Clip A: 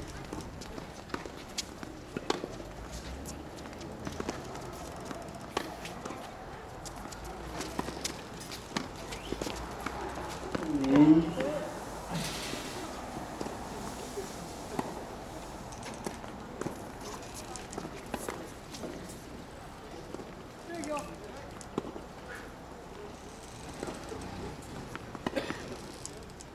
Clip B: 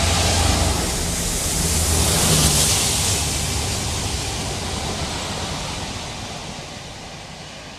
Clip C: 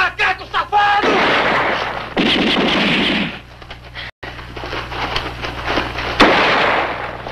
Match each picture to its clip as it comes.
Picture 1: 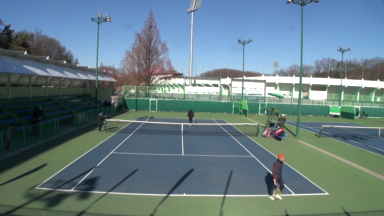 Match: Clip A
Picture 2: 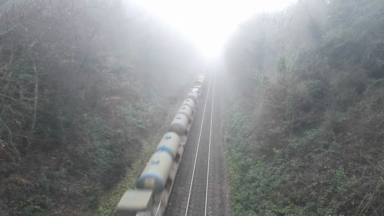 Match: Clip B